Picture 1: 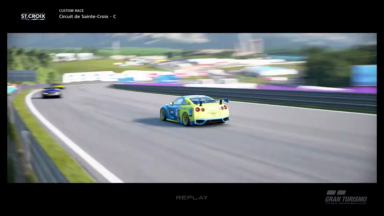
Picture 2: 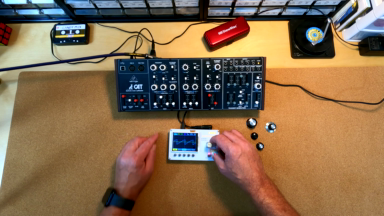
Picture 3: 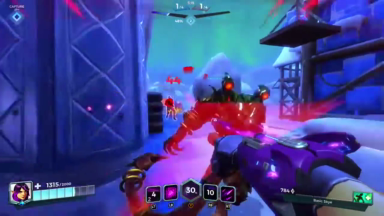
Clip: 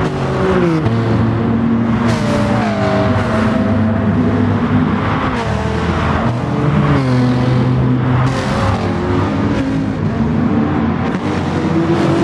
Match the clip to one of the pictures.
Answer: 1